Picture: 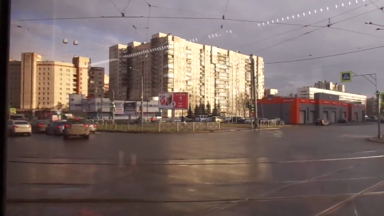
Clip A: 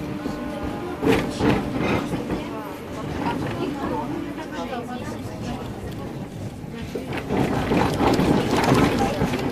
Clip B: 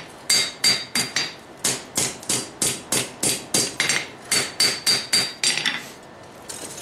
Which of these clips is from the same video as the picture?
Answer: A